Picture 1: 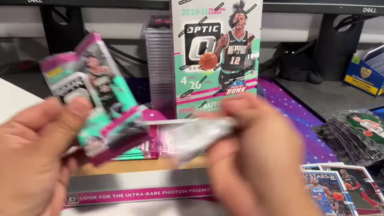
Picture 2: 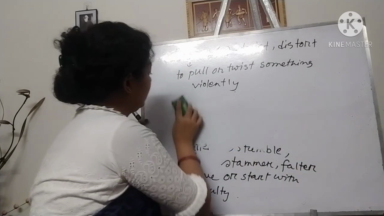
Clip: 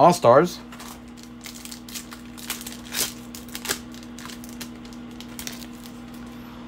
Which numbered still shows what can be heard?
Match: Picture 1